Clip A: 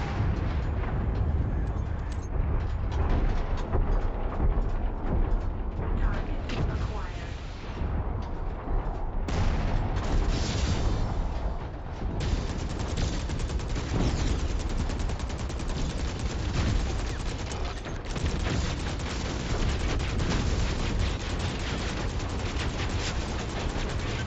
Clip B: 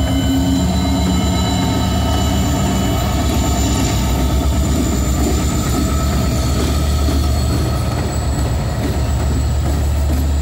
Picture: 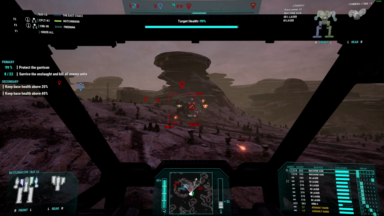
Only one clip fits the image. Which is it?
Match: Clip A